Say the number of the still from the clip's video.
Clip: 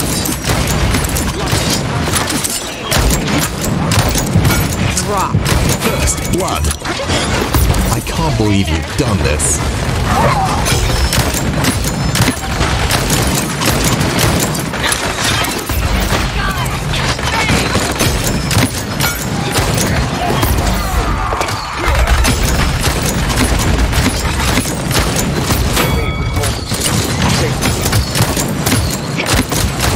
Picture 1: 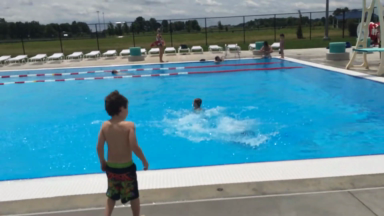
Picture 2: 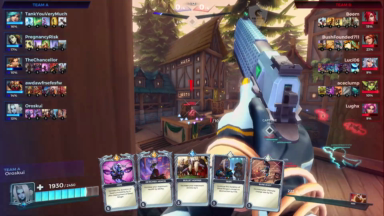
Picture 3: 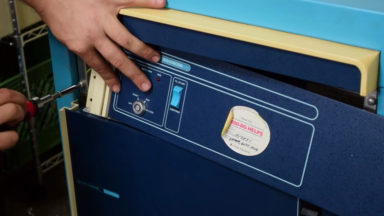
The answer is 2